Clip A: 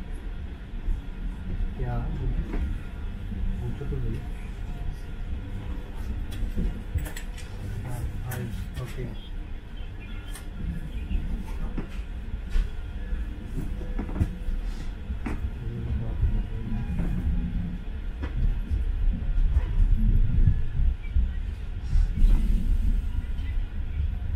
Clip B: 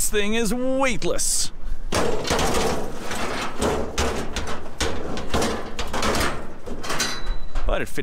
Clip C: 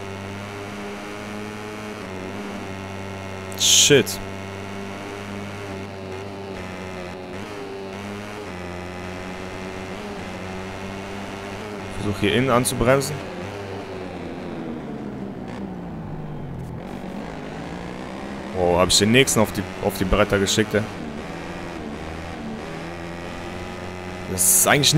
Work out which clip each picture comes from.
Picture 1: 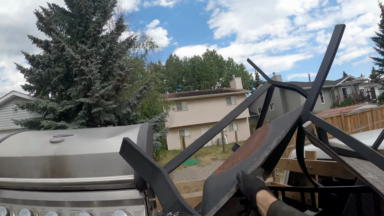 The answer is B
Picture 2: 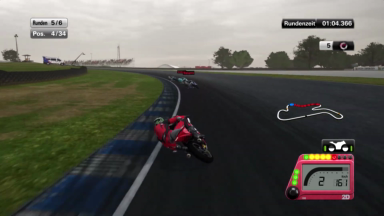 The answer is C